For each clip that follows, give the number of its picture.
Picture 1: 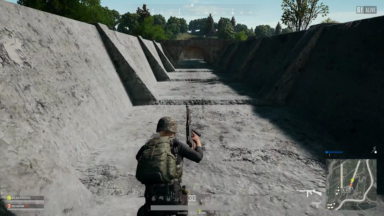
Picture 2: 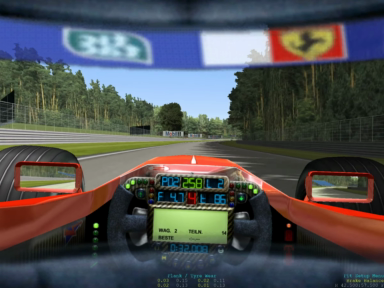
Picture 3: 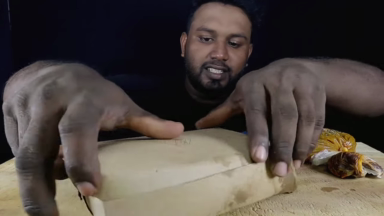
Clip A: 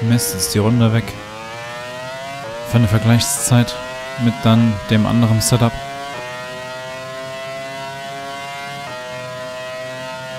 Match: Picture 2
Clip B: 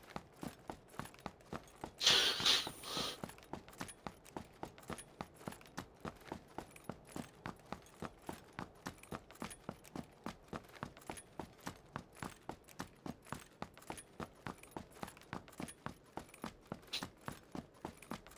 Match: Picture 1